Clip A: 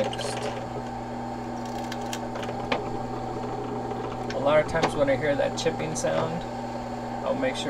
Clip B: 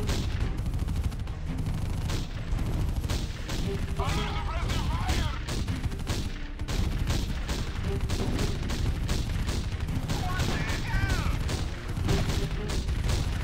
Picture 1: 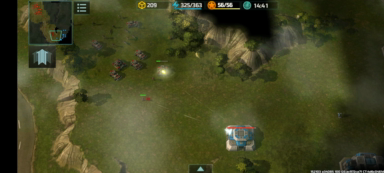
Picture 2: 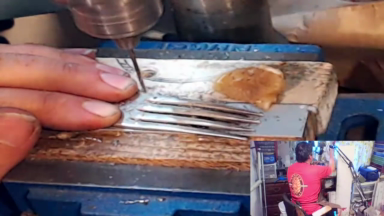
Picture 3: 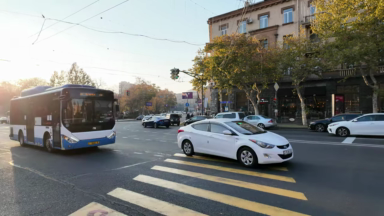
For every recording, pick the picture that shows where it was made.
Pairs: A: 2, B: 1